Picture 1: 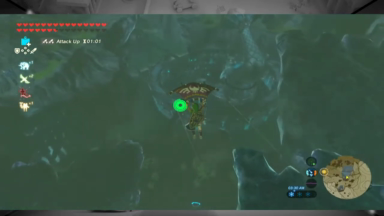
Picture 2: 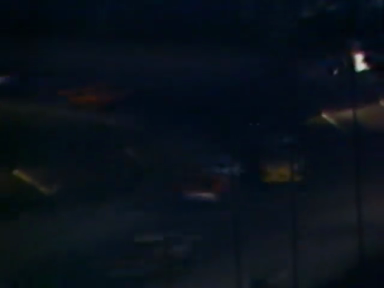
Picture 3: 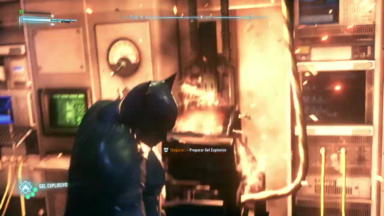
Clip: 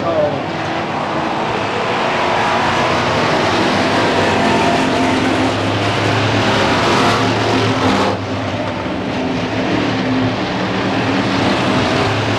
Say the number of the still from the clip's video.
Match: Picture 2